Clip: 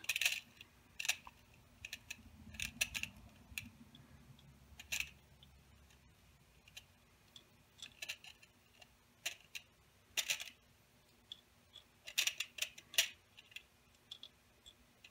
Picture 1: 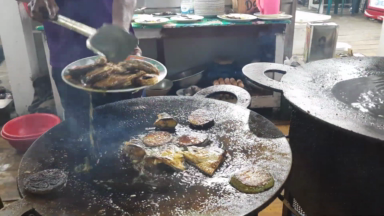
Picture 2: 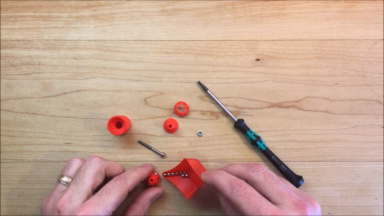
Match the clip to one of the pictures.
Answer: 2